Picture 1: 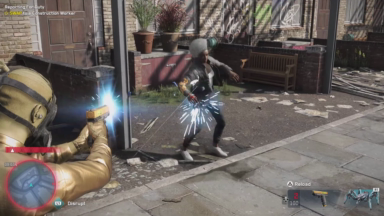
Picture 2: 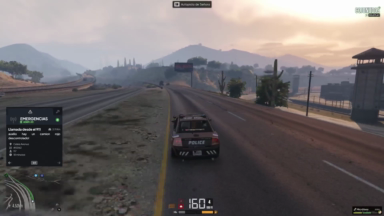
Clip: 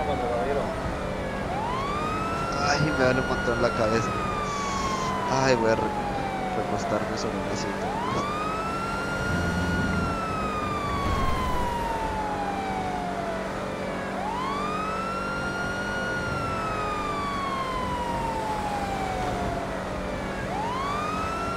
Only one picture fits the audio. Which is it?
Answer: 2